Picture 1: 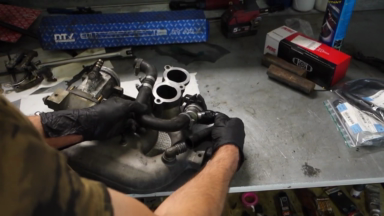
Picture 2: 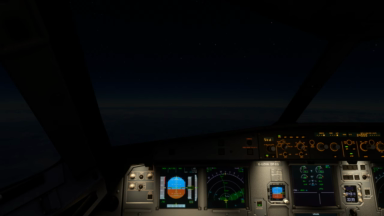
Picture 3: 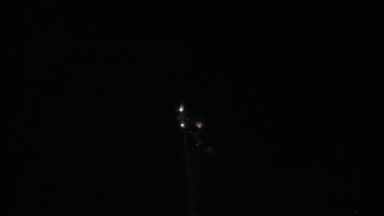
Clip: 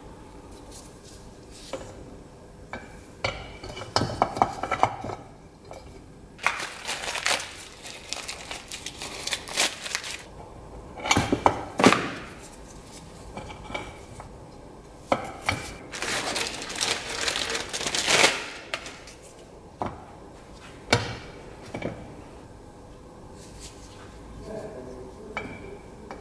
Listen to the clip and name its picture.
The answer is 1